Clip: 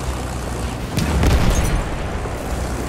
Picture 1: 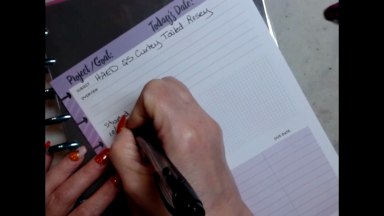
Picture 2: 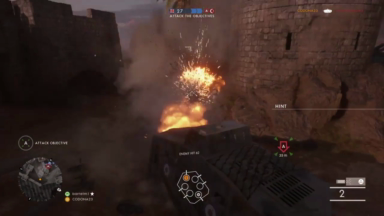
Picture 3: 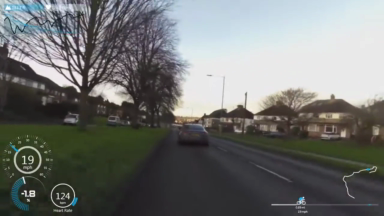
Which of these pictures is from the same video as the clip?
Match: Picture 2